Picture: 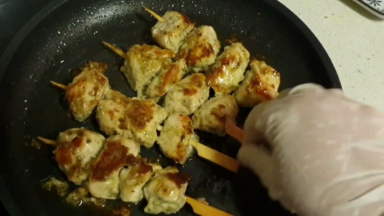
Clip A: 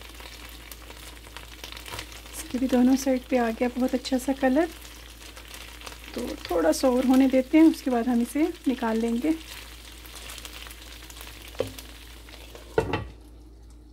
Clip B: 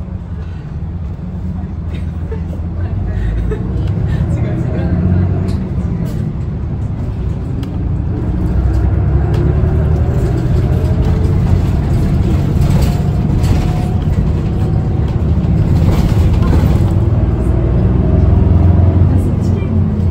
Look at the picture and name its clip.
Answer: A